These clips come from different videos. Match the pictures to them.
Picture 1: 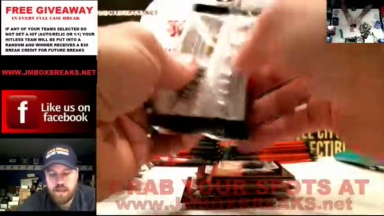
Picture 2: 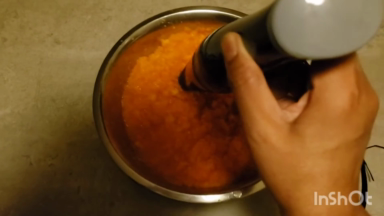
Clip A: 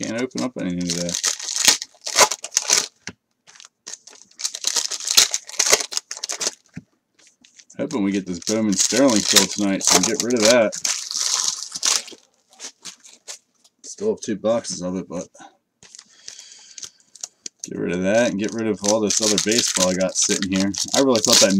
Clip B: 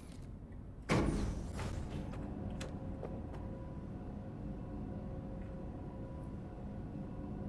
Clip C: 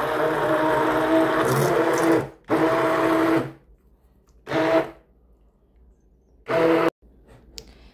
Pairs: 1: A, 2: C